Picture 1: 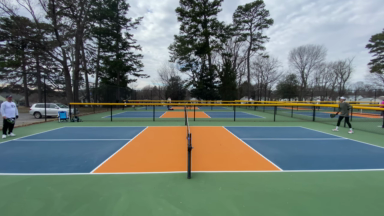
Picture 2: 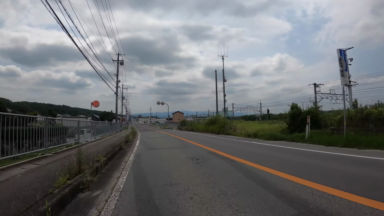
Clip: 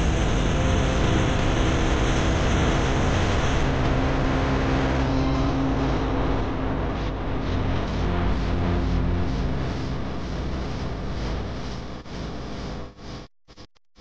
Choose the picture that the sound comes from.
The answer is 2